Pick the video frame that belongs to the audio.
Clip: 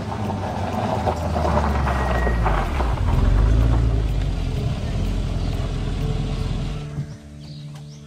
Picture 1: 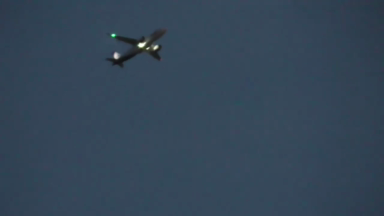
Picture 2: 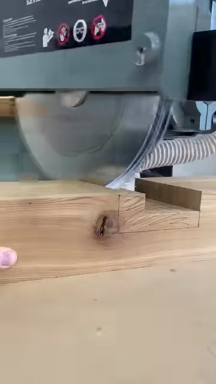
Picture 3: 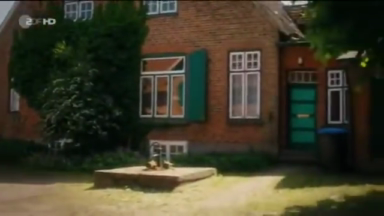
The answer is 3